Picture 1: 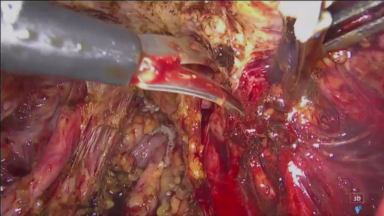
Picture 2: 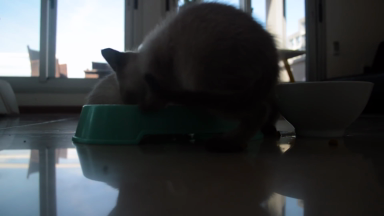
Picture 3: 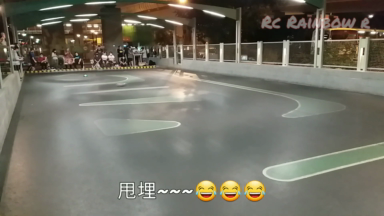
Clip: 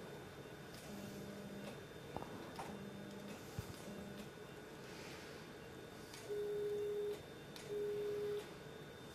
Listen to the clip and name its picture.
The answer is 1